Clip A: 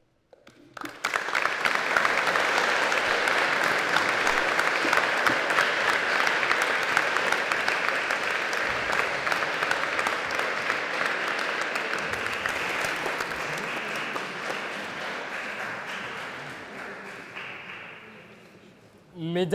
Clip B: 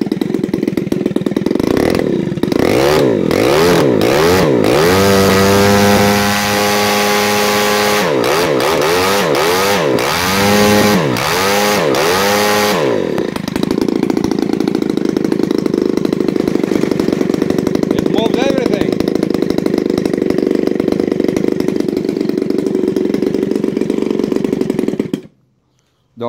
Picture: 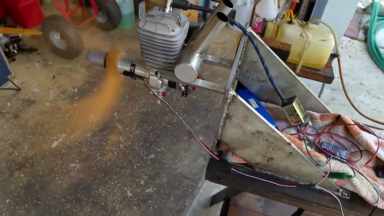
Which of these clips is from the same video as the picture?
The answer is B